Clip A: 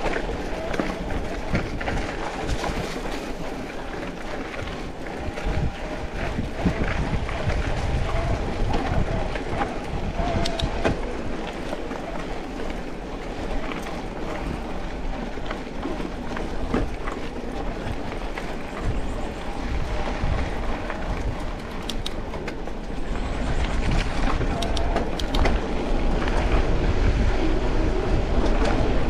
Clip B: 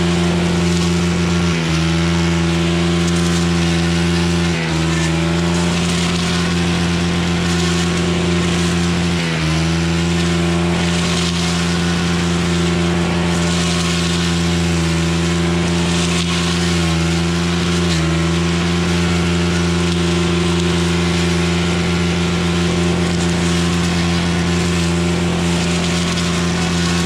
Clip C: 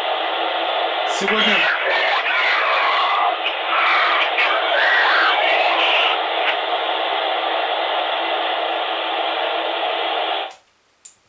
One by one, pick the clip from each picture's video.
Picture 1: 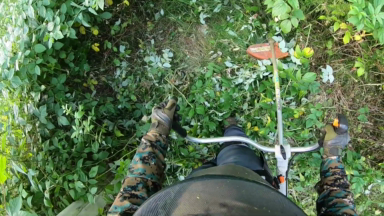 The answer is B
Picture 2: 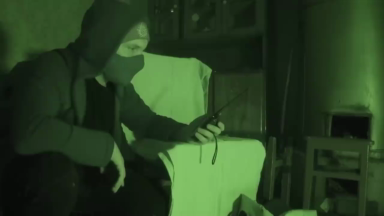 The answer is C